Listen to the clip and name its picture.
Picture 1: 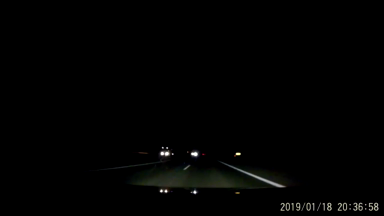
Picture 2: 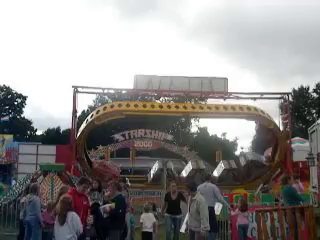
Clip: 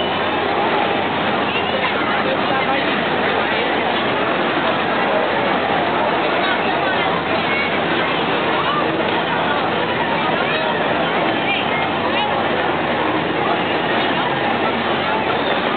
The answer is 2